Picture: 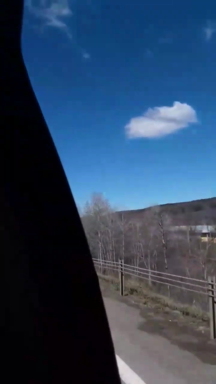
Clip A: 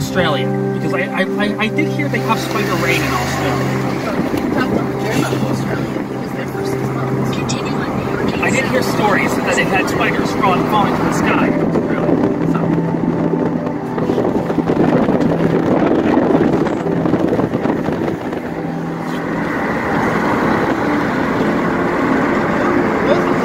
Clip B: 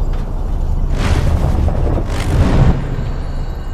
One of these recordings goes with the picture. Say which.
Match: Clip A